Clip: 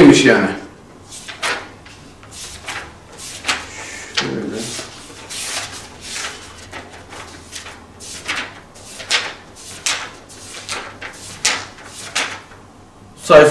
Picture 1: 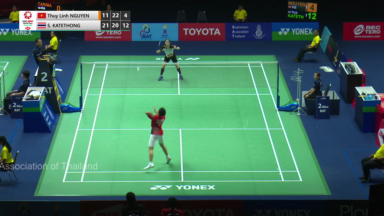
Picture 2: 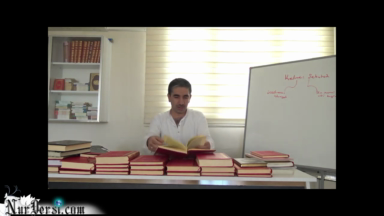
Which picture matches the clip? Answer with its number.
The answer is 2